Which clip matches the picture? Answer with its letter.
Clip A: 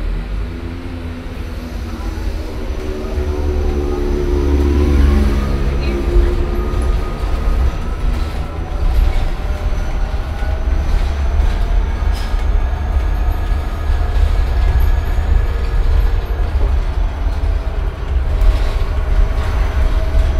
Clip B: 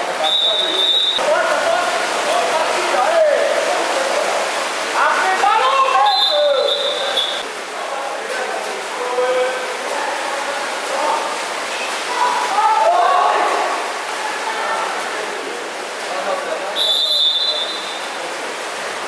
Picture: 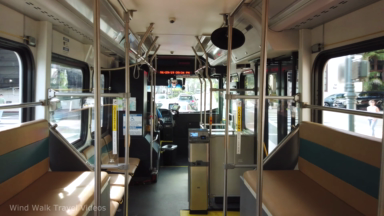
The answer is A